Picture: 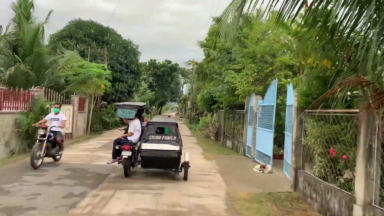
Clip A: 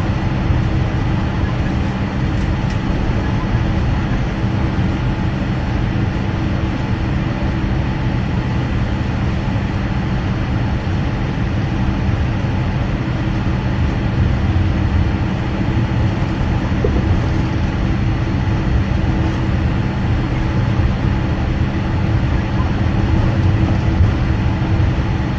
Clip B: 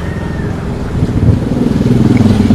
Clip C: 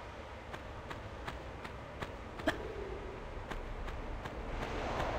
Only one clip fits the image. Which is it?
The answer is B